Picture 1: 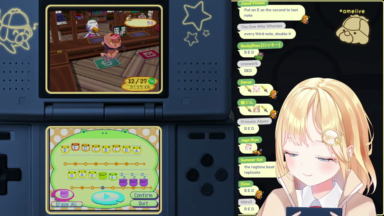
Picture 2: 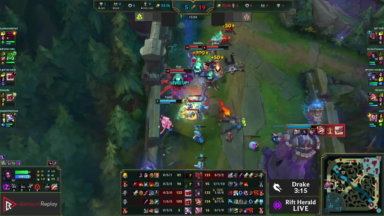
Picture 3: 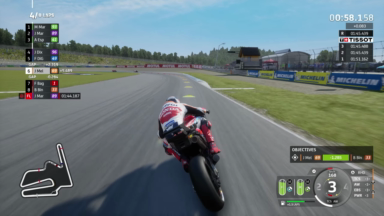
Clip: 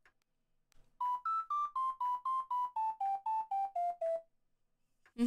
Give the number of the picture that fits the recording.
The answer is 1